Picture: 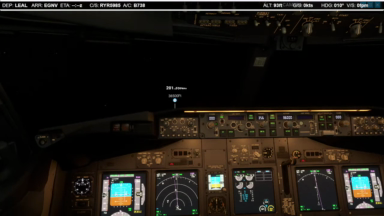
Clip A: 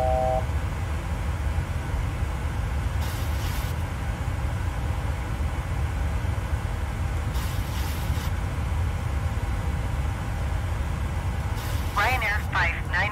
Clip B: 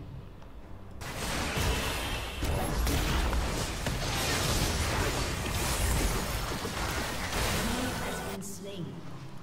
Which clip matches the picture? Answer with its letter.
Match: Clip A